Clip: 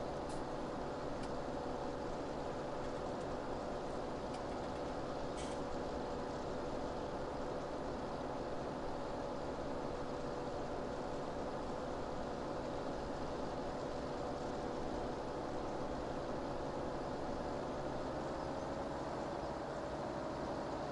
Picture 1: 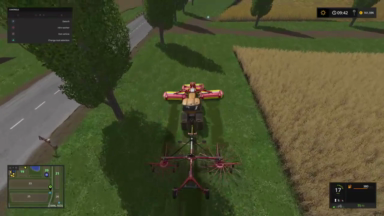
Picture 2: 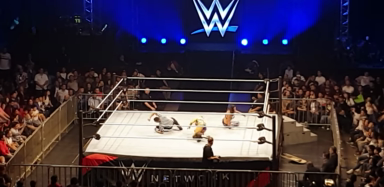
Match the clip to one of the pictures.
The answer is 1